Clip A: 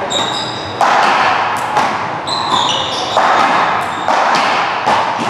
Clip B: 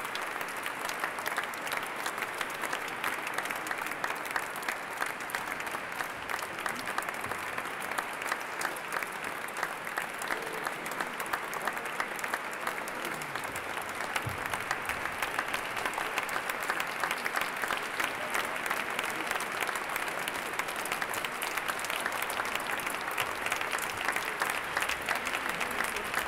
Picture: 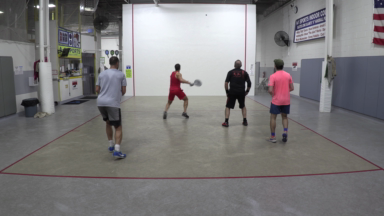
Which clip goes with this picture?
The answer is A